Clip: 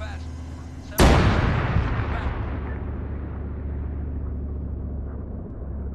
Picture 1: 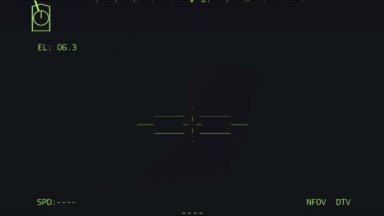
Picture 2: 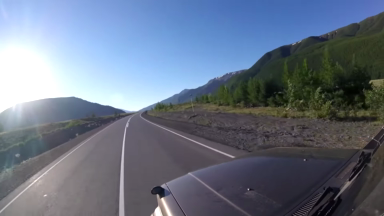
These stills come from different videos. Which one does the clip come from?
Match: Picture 1